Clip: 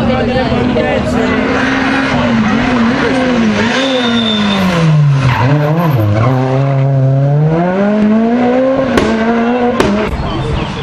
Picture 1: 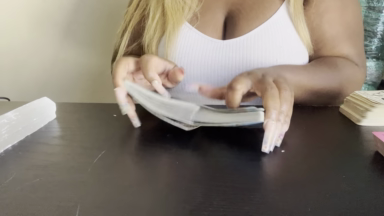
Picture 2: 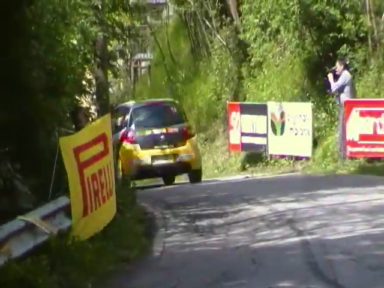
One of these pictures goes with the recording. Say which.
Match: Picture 2